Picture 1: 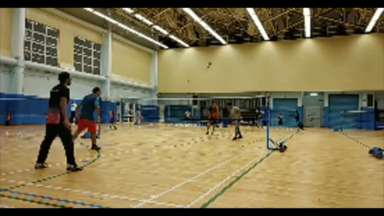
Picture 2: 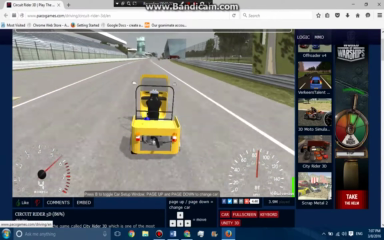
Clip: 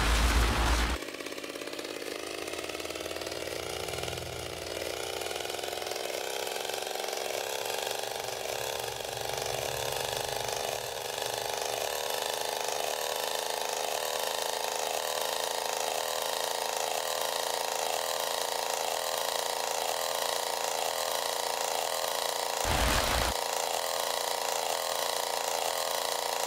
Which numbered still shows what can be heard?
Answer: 2